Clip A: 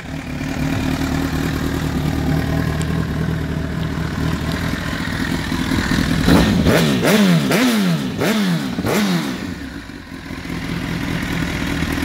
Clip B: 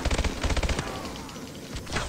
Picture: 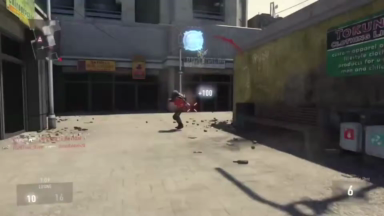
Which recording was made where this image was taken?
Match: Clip B